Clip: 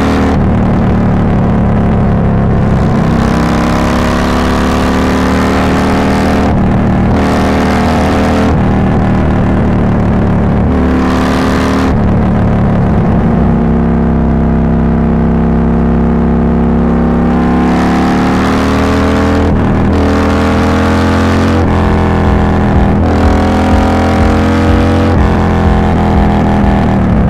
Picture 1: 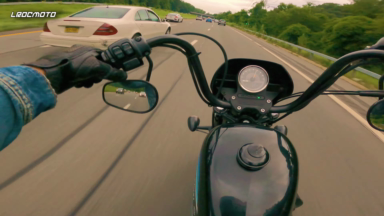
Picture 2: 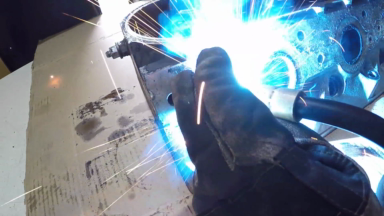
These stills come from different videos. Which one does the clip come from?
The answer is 1